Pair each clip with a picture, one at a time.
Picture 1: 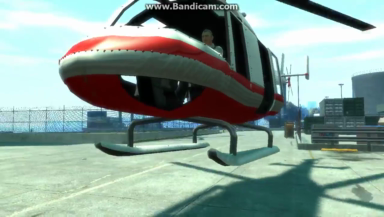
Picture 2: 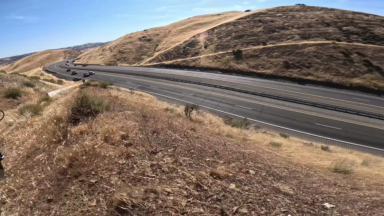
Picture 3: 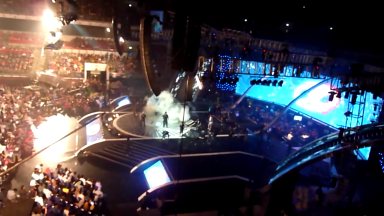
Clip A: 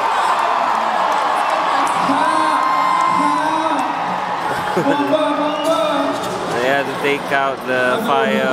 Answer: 3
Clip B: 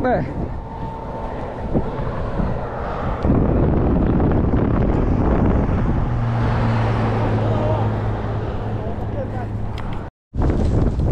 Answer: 2